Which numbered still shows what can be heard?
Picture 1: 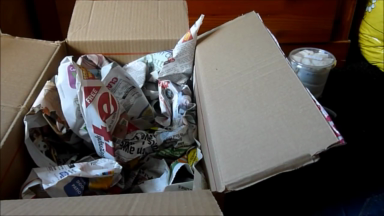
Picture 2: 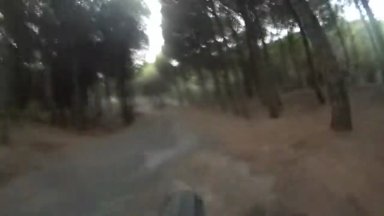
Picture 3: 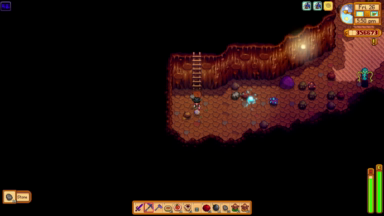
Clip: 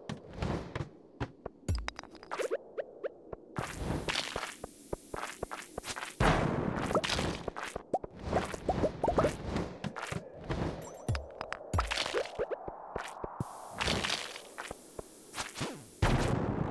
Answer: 3